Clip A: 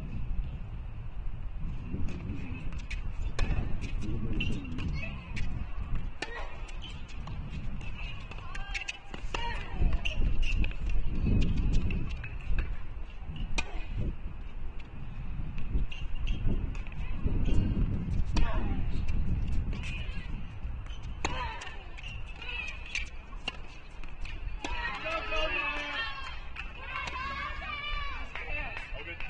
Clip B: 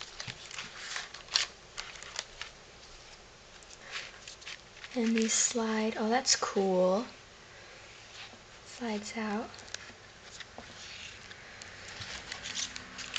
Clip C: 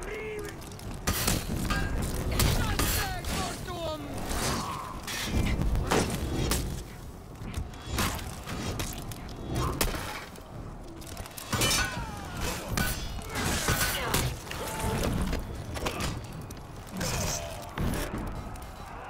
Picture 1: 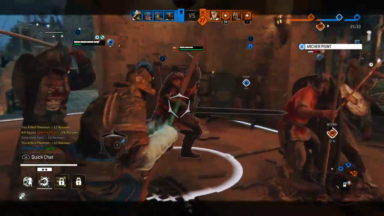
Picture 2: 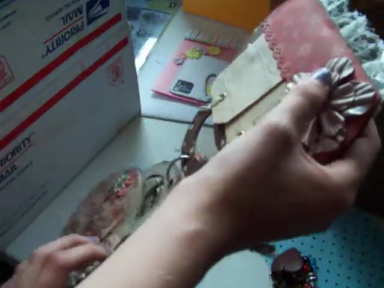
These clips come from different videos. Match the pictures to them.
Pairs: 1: C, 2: B